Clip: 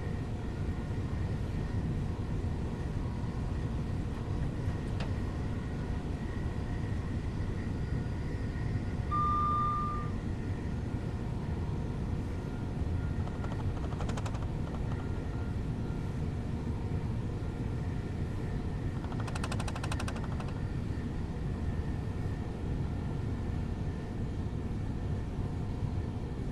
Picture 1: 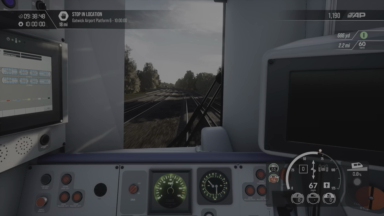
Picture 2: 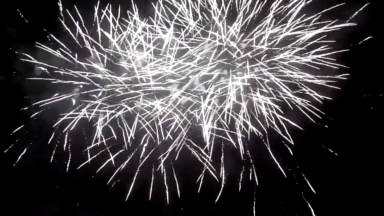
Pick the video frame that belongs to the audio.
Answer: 1